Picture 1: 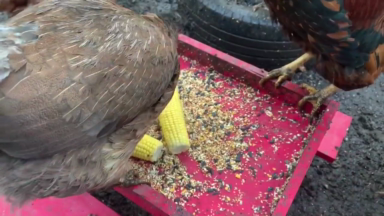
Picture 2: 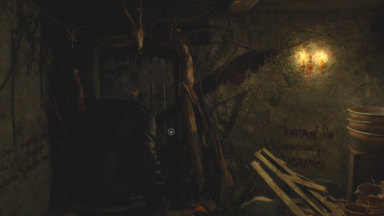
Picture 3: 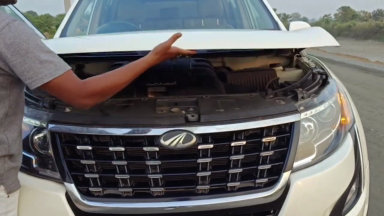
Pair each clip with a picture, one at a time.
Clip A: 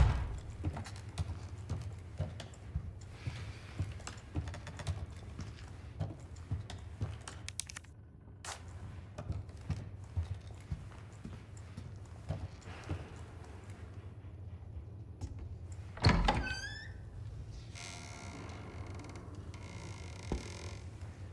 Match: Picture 2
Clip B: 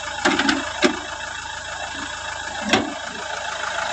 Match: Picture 3